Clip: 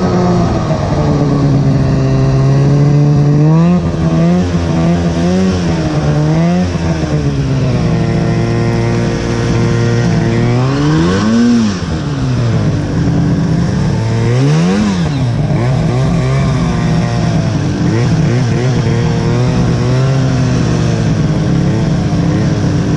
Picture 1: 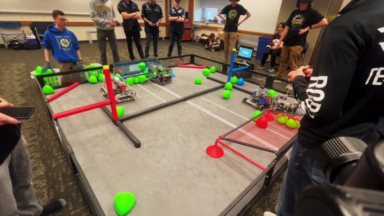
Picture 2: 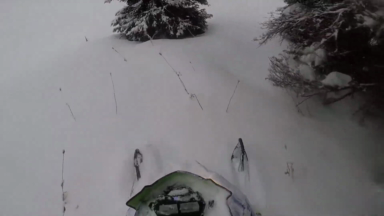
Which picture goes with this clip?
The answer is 2